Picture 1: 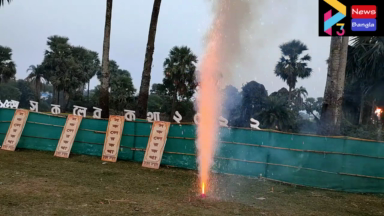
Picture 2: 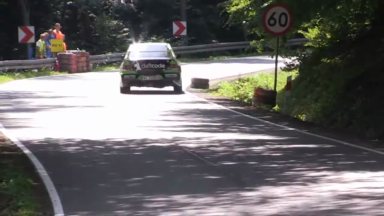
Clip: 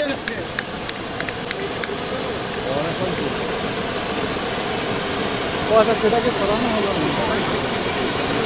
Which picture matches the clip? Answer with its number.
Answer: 1